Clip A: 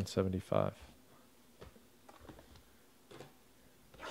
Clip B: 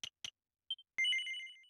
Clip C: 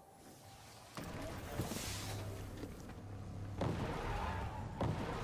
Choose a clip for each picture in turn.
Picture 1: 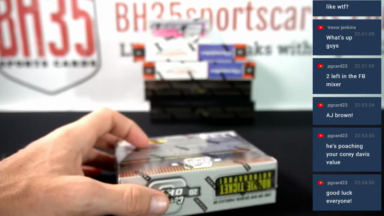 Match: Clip A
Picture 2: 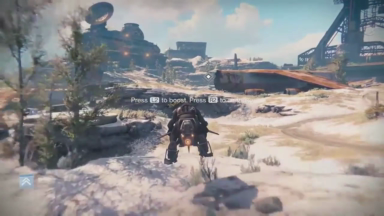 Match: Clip C